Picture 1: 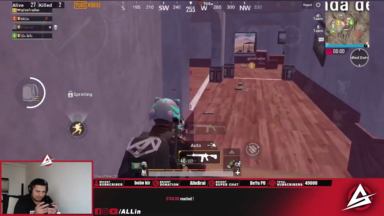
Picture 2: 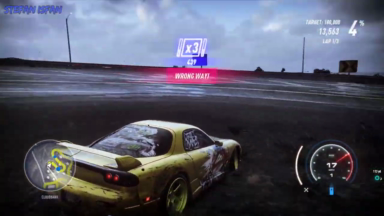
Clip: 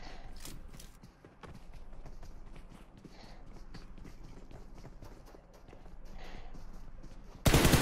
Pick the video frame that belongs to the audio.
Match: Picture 1